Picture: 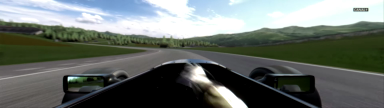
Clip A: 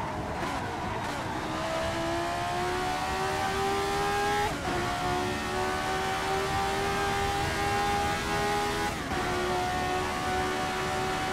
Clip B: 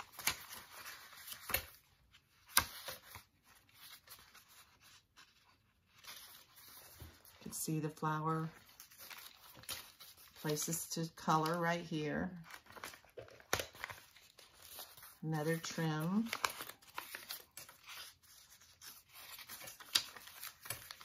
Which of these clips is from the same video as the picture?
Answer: A